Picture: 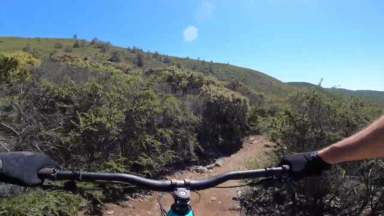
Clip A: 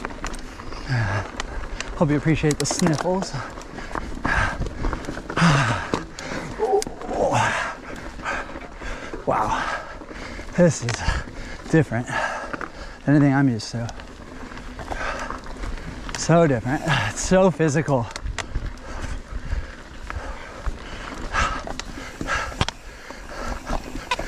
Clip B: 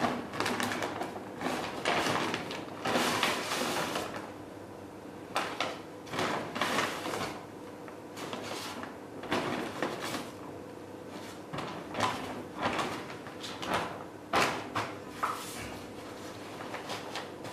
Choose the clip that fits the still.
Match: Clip A